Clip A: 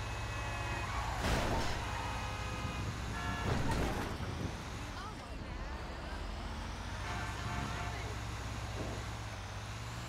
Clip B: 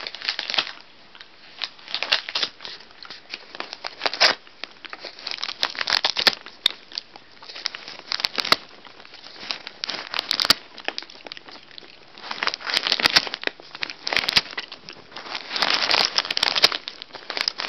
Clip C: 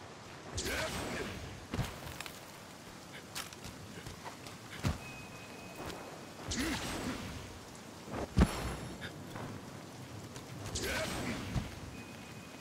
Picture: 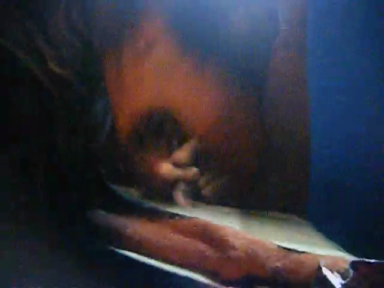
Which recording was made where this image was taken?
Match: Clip B